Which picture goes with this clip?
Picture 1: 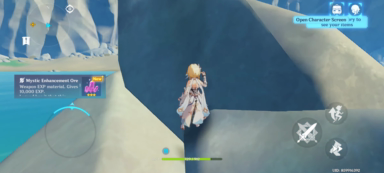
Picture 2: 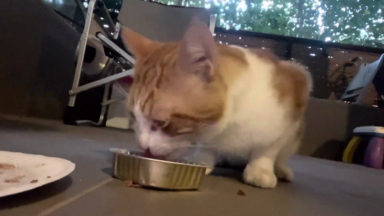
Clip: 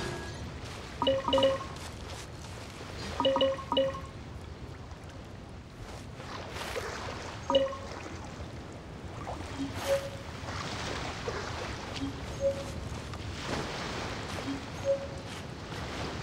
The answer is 1